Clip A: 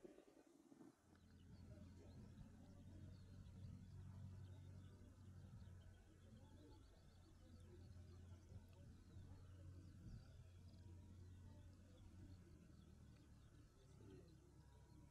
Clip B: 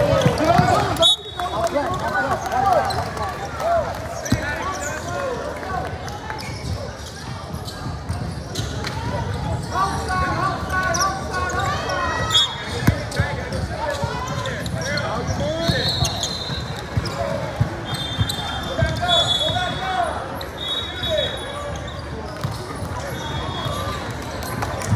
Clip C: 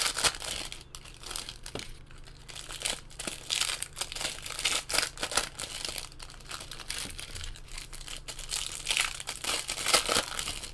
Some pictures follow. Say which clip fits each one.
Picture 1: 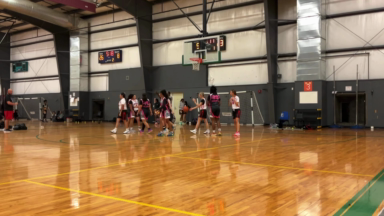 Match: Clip B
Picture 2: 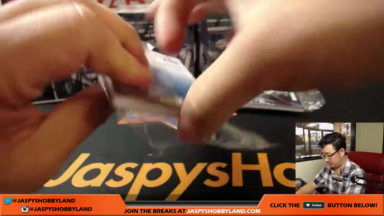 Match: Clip C